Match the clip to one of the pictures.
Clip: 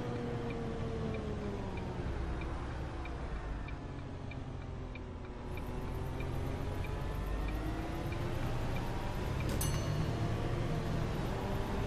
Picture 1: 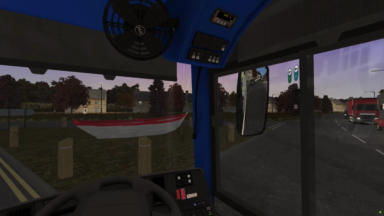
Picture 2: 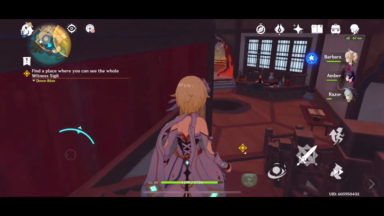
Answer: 1